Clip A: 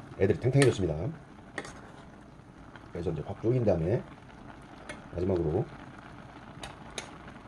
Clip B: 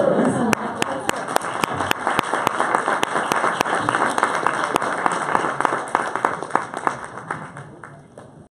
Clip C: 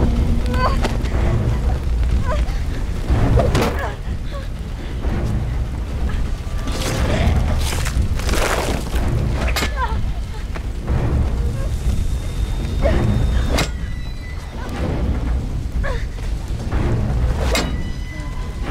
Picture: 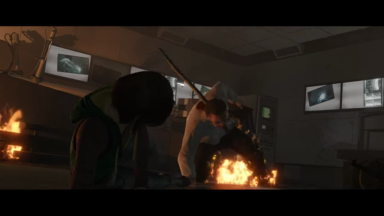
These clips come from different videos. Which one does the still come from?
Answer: C